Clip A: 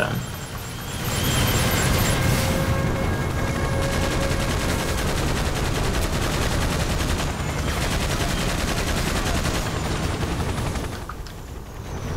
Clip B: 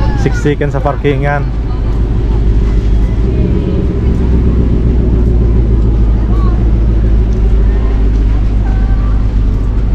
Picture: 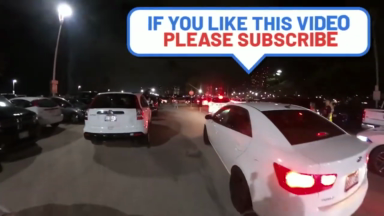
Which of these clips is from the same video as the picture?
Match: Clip B